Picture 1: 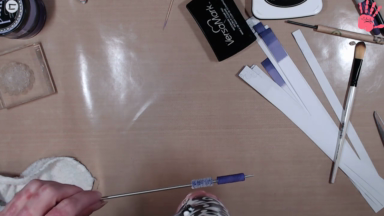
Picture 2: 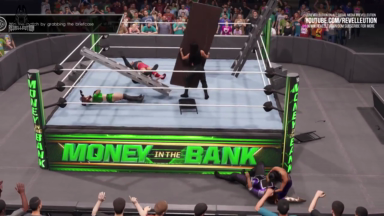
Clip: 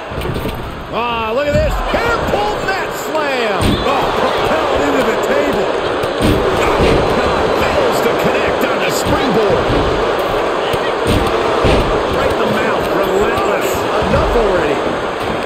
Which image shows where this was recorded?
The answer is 2